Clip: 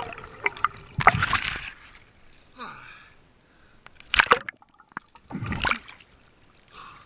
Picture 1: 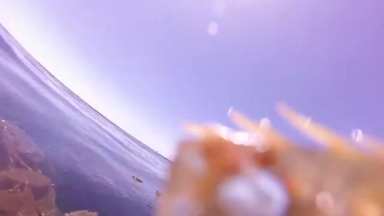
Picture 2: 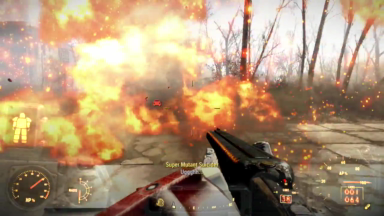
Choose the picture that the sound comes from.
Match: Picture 1